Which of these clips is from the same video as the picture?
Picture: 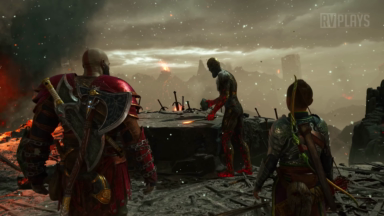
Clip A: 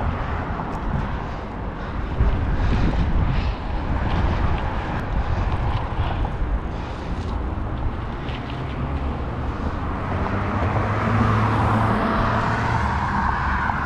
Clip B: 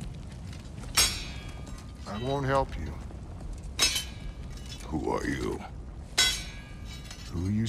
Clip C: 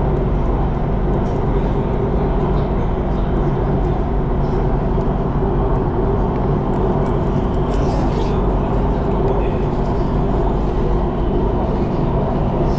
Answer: B